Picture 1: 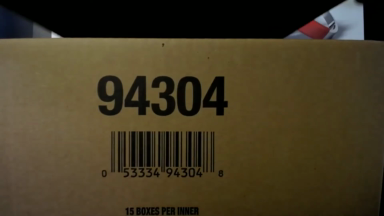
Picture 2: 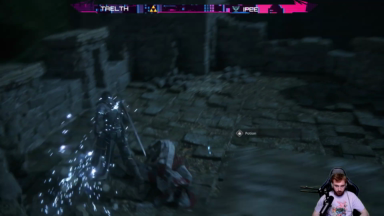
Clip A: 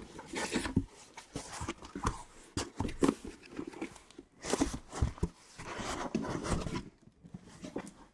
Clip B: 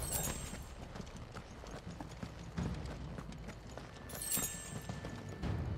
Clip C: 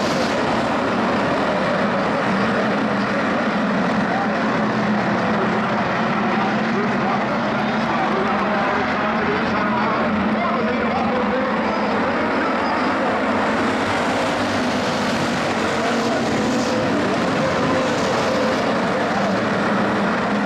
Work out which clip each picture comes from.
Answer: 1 A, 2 B